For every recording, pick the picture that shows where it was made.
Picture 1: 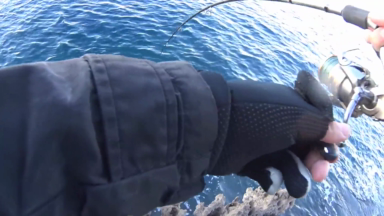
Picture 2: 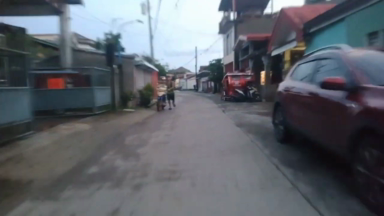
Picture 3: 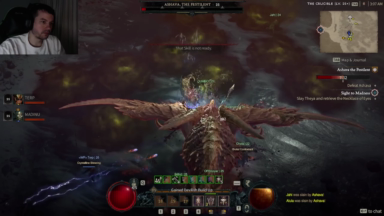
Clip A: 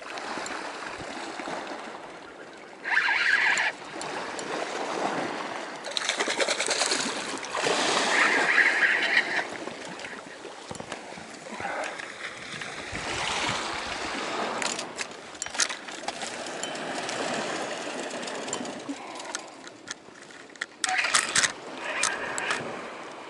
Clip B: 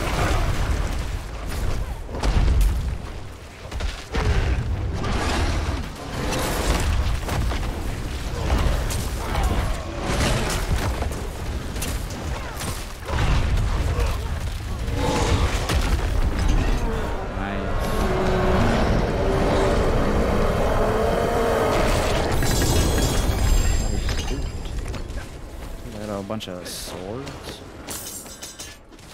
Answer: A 1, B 3